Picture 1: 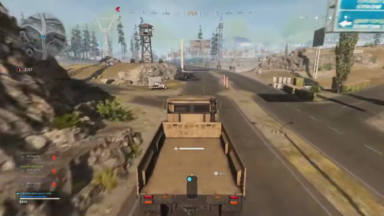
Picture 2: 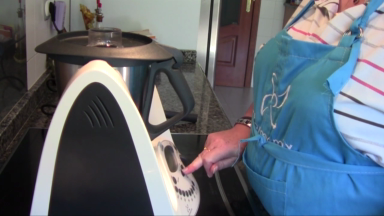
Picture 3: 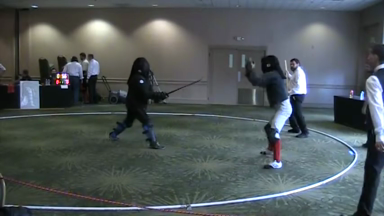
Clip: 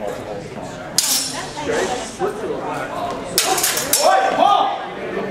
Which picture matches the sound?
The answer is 3